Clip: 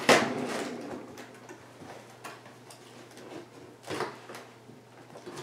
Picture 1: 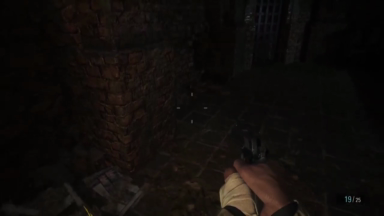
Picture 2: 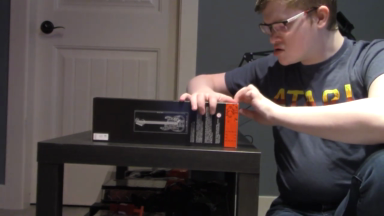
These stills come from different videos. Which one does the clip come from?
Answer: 2